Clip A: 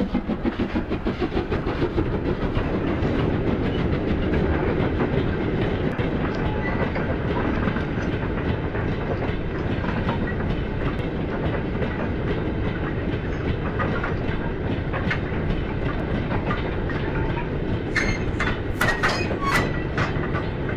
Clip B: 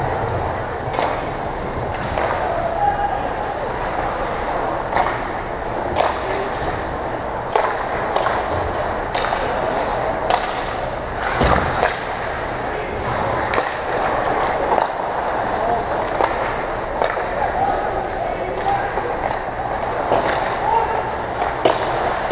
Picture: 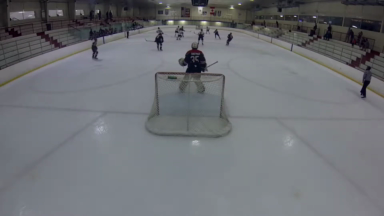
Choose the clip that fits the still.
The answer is B